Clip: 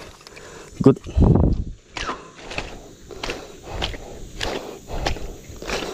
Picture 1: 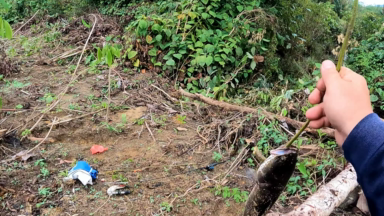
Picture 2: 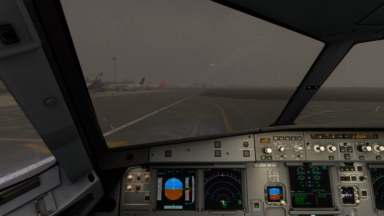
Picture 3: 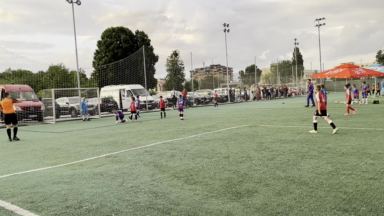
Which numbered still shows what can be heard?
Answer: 1